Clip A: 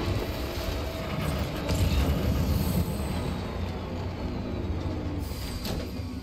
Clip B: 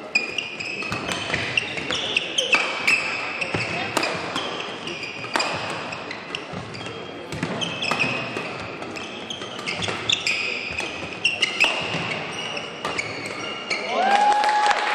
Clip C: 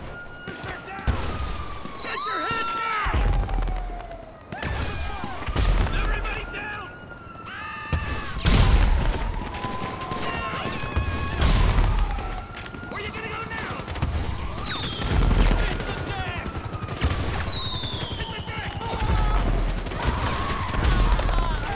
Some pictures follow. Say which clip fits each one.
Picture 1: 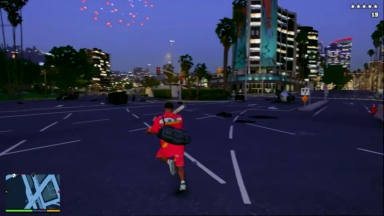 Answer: C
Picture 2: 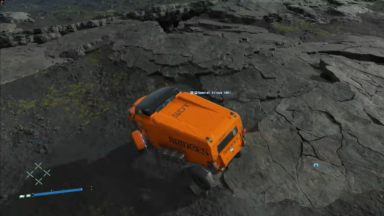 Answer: A